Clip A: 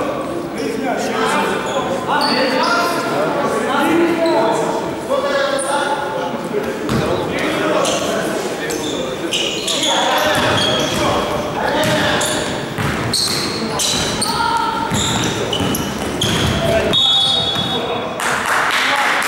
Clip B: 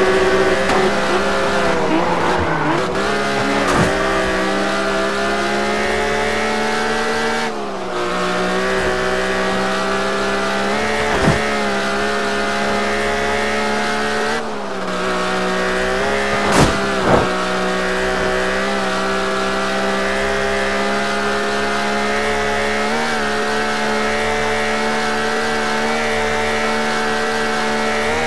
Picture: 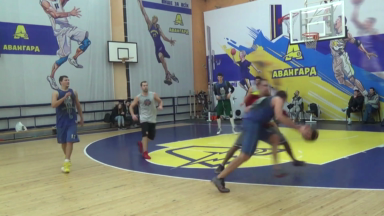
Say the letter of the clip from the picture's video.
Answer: A